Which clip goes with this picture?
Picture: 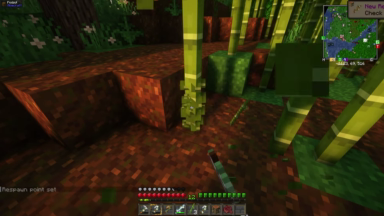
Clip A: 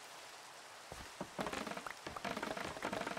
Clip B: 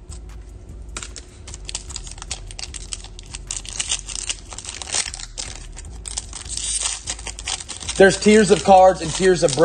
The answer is A